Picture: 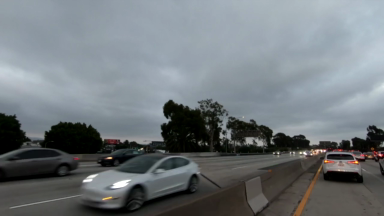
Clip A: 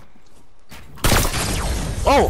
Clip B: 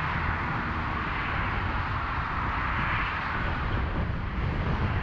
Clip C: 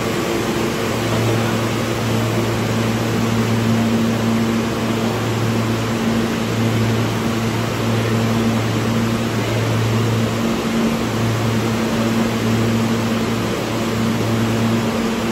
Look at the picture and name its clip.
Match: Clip B